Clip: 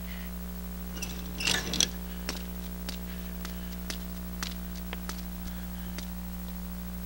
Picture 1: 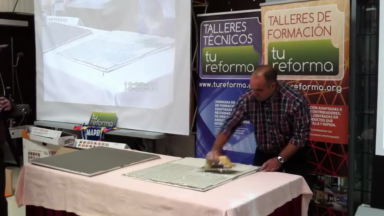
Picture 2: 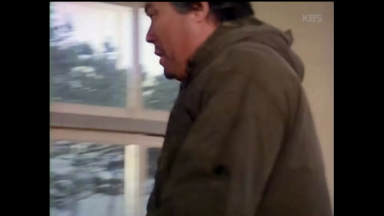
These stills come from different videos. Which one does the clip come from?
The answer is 2